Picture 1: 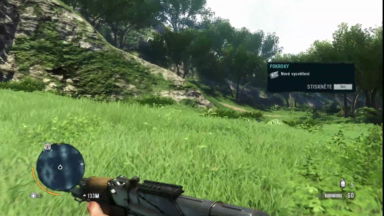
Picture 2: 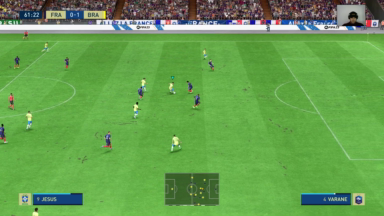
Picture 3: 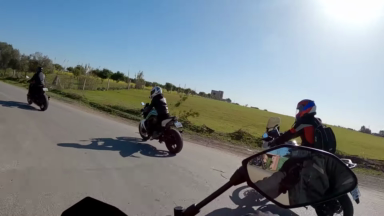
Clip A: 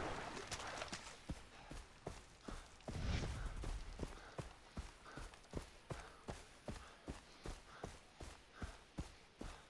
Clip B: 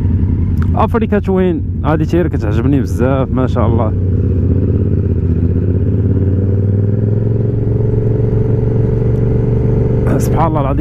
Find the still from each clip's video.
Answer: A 1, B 3